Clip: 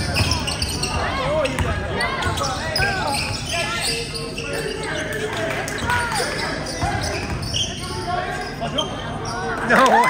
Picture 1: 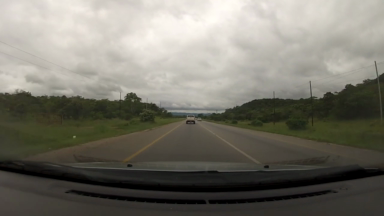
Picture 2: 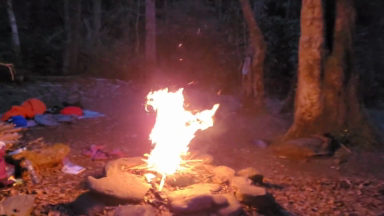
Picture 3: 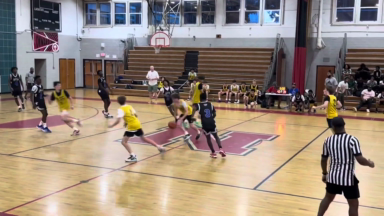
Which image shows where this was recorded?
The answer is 3